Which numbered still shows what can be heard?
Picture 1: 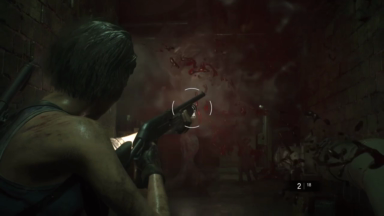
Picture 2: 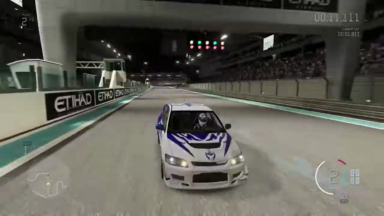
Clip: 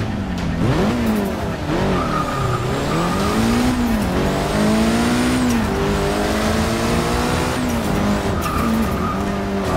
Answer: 2